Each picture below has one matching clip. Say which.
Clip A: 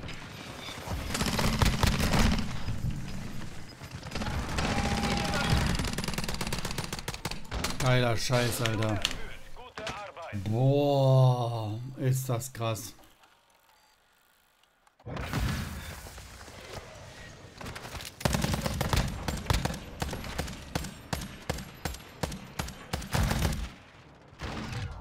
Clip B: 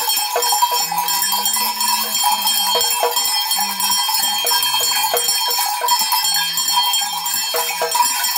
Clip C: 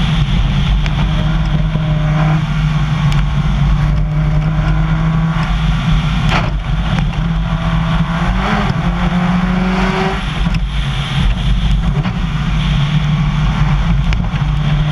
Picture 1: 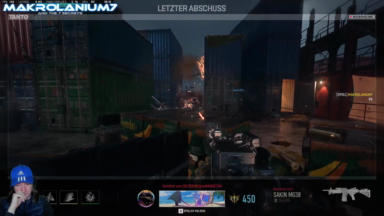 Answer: A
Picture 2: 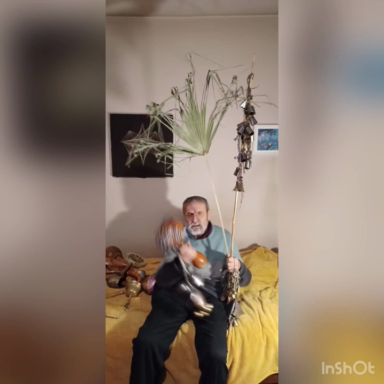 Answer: B